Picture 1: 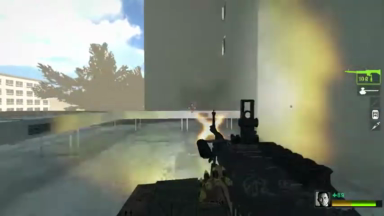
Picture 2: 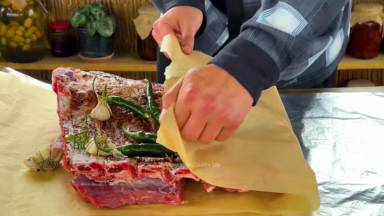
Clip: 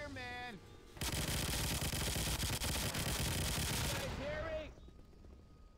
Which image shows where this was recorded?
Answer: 1